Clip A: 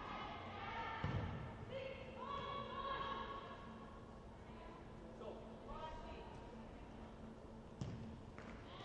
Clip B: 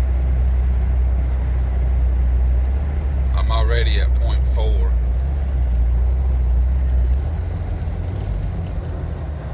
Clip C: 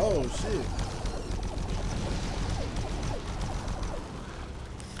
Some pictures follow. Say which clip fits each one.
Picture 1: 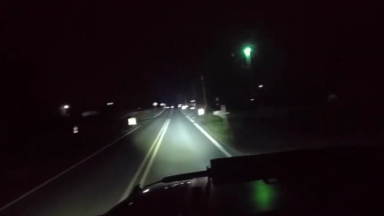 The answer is B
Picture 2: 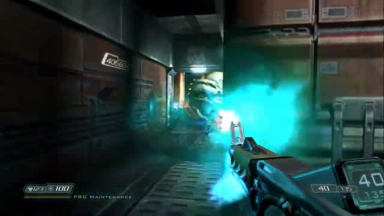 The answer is C